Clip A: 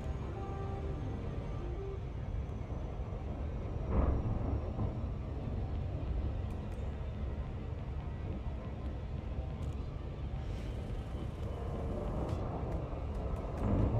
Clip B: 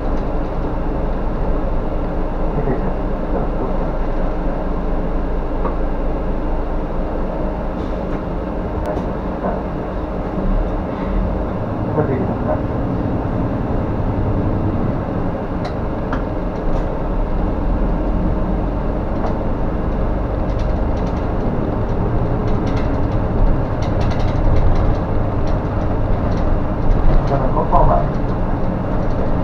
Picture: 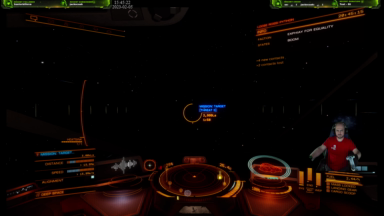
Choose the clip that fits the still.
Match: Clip A